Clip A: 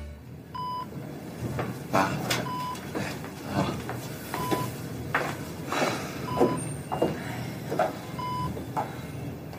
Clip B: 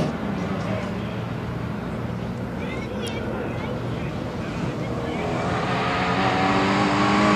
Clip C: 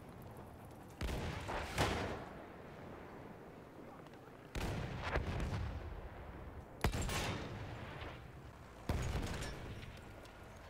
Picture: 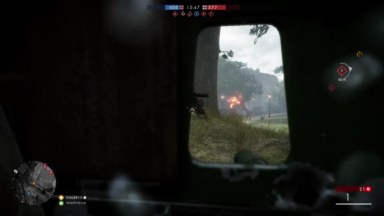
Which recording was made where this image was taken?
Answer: C